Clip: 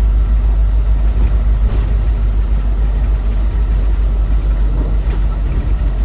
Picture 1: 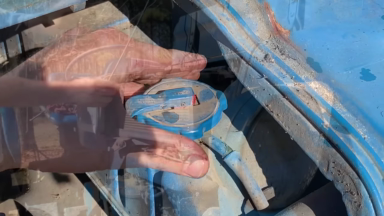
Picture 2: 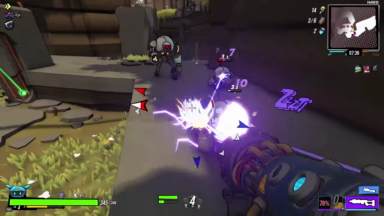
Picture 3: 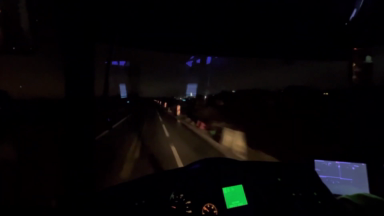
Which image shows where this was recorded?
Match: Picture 3